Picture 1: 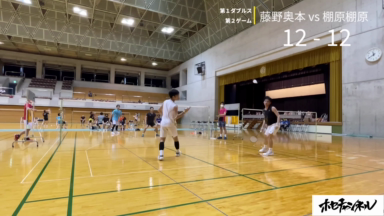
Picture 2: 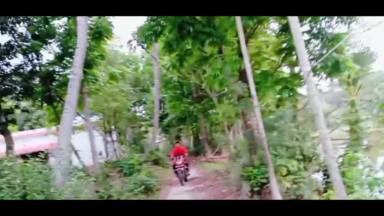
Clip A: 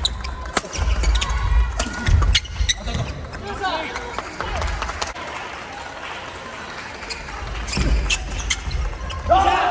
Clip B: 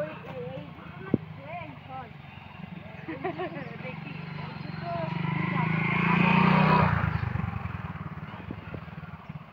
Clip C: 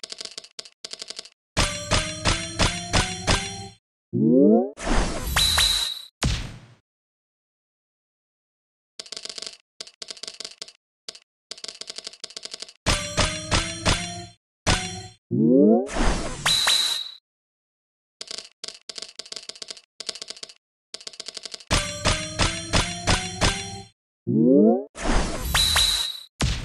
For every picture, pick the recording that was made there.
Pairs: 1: A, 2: B